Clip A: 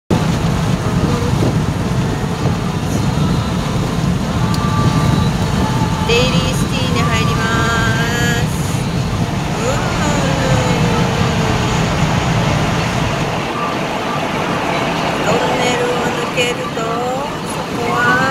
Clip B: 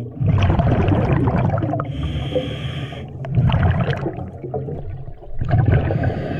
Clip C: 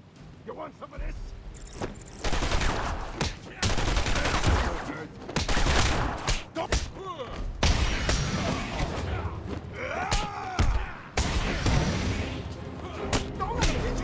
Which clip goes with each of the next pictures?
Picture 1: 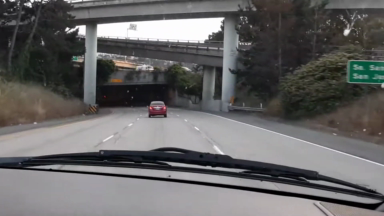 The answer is A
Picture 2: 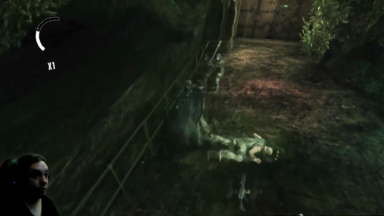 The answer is C